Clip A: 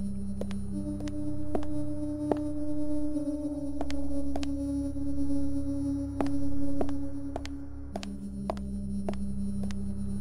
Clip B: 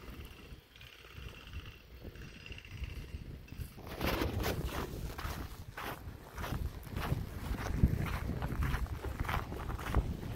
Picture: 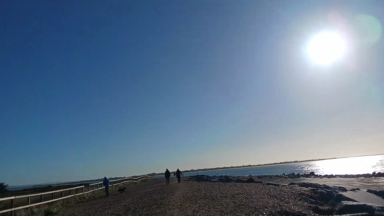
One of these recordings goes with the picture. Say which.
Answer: B